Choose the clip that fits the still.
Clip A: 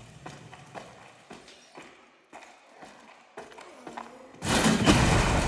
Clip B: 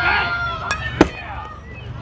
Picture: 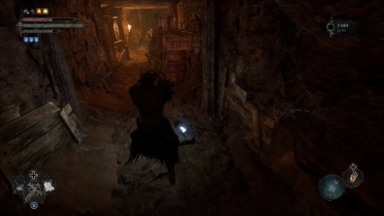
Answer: A